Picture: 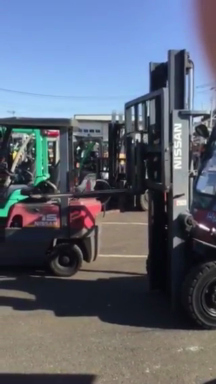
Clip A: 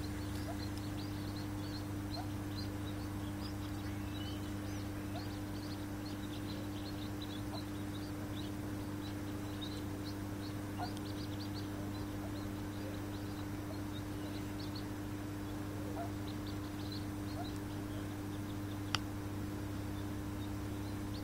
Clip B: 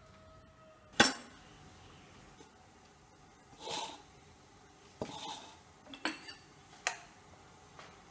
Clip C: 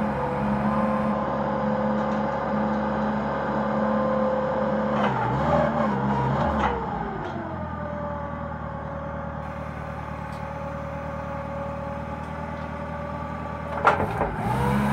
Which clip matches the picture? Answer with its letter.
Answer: C